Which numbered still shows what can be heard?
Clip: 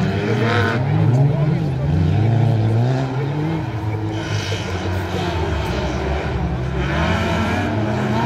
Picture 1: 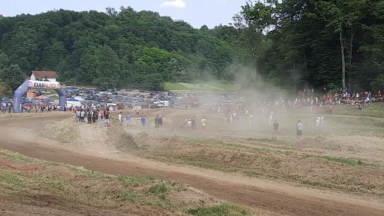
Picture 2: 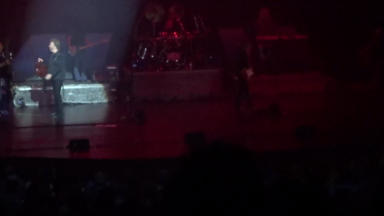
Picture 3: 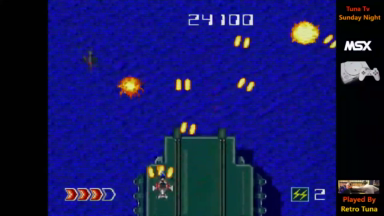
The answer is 1